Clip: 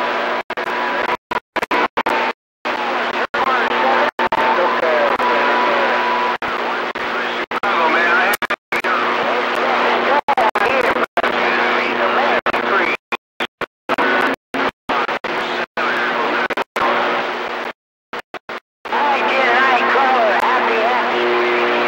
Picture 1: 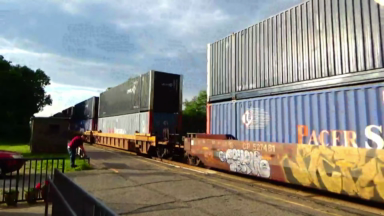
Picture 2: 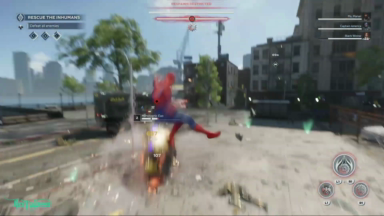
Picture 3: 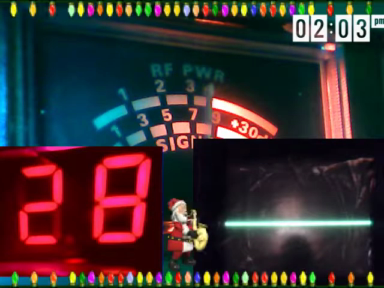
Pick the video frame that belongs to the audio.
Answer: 3